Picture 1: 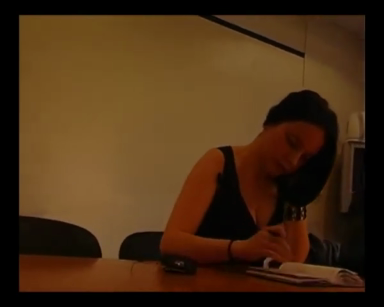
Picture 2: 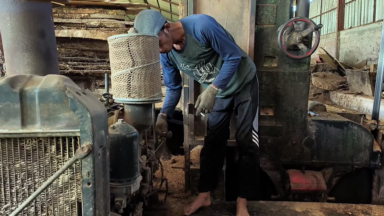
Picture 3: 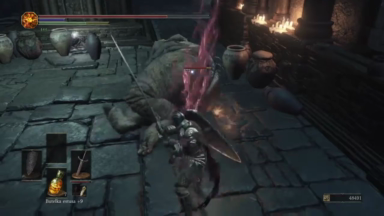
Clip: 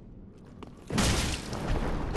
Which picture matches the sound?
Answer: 3